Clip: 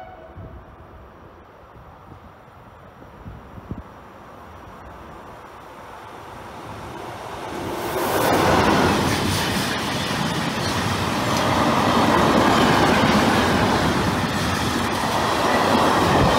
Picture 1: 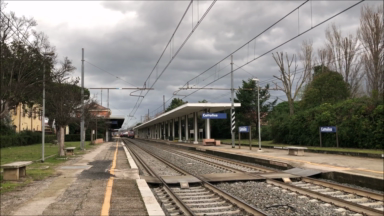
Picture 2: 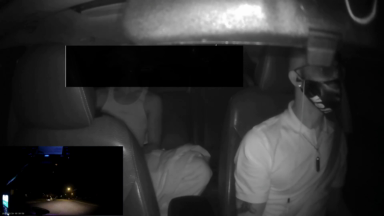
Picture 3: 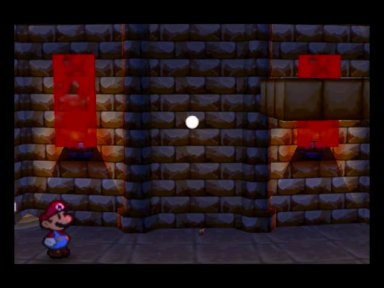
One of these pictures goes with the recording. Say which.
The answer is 1